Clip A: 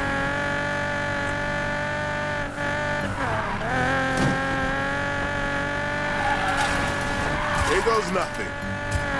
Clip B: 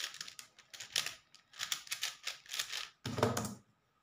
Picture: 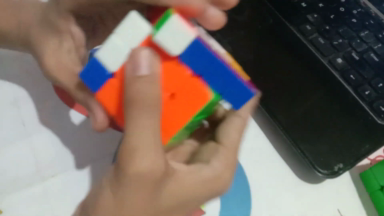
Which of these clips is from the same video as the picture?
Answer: B